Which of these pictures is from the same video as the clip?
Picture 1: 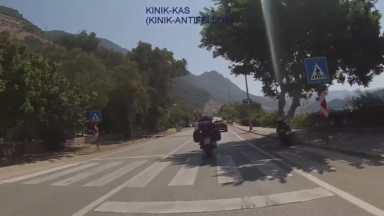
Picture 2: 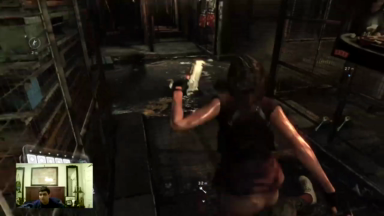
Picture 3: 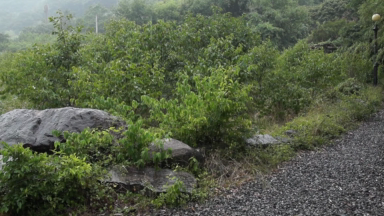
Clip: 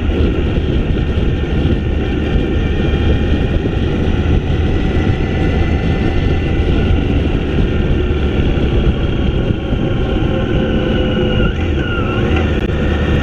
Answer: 1